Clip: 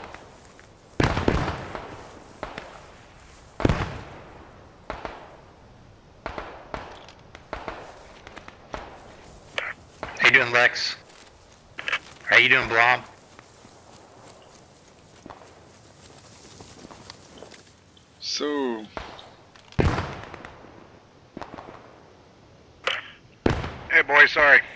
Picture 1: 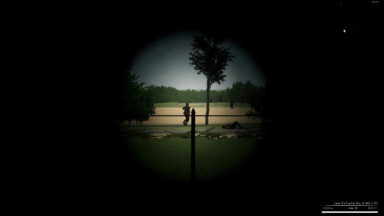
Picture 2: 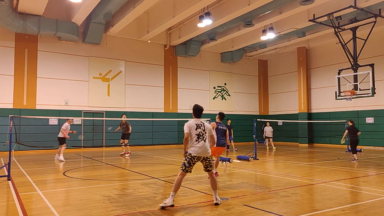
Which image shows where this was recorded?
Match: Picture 1